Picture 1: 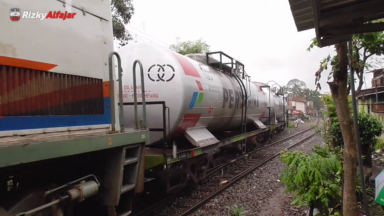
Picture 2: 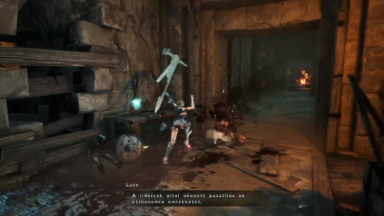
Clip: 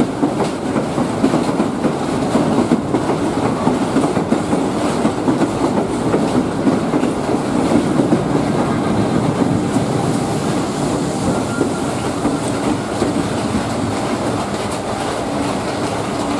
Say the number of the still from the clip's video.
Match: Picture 1